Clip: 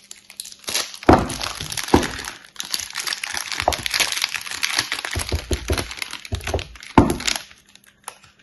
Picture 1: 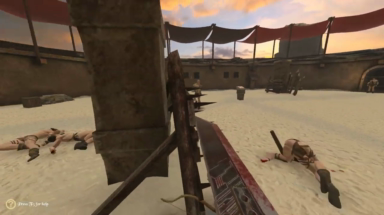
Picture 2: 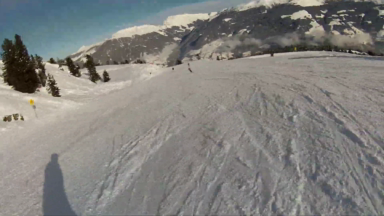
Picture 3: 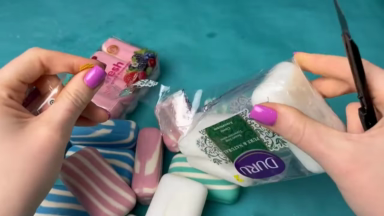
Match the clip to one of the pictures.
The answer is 3